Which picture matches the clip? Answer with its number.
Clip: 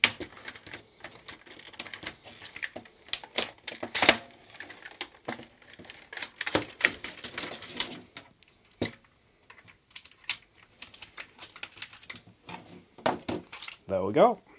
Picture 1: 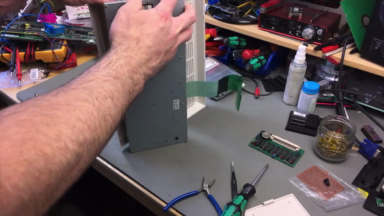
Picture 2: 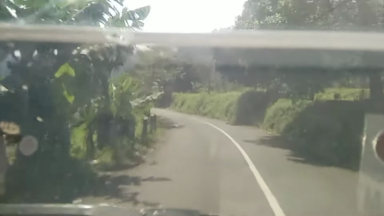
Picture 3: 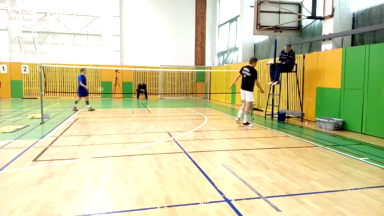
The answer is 1